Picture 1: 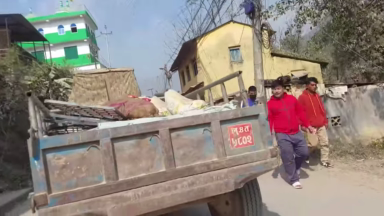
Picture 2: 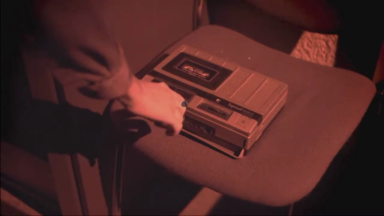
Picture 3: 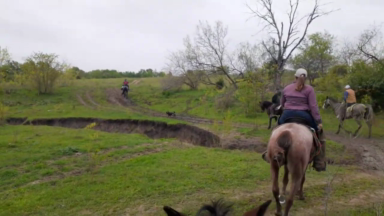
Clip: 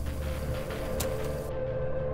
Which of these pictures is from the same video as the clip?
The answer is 2